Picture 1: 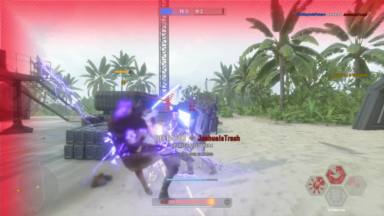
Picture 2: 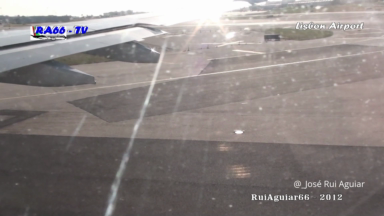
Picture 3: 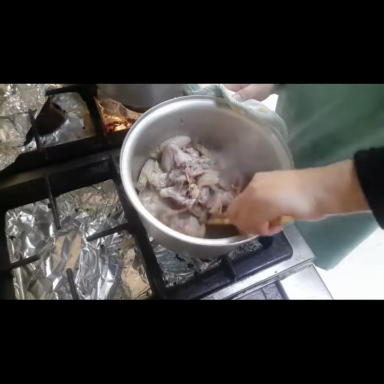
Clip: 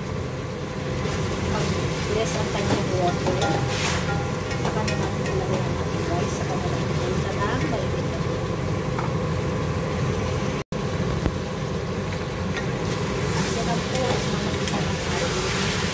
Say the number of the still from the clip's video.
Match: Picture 3